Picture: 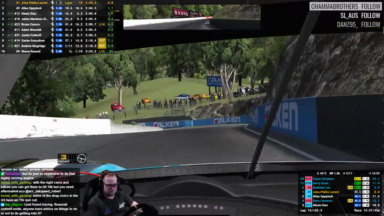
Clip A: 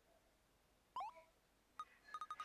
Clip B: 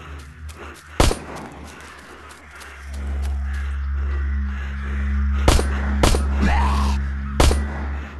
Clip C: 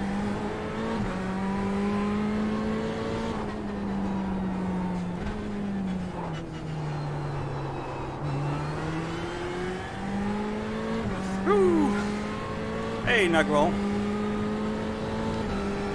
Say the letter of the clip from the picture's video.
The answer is C